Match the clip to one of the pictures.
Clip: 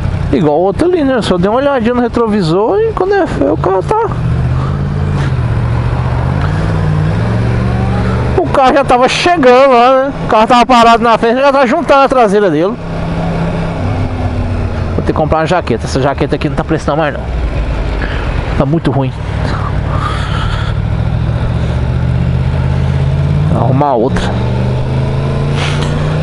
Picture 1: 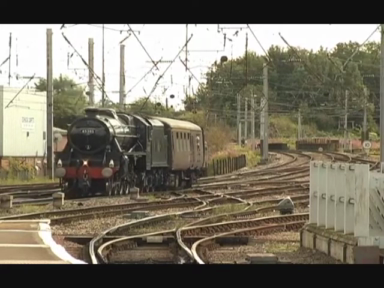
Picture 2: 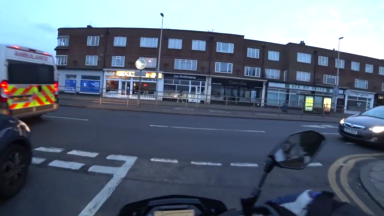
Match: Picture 2